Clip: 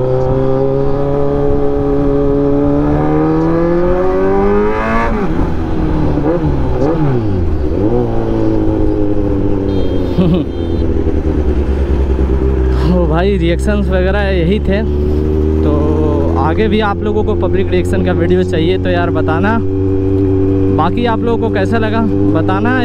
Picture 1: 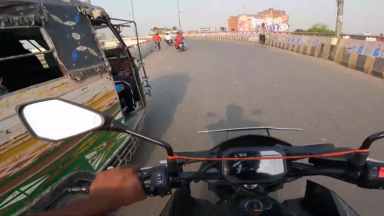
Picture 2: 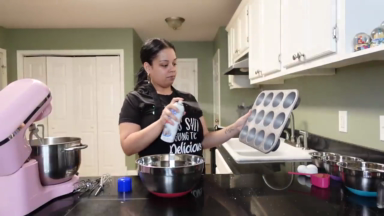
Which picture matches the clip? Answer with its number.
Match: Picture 1